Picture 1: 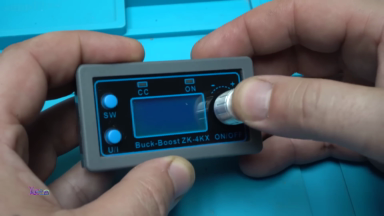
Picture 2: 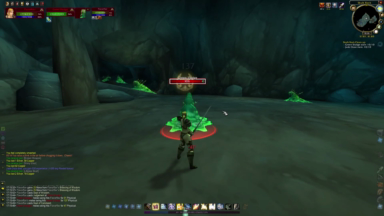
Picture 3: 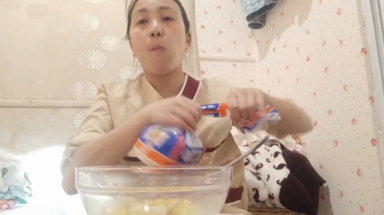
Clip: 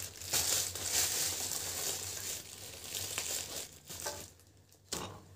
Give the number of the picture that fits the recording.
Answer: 3